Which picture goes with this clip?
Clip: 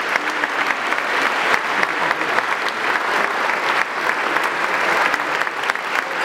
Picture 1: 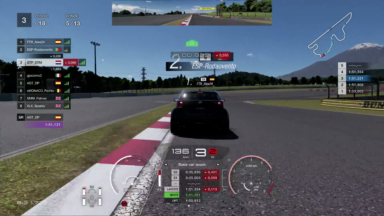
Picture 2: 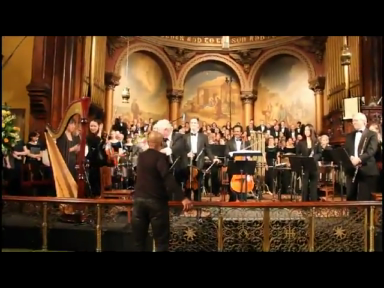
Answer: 2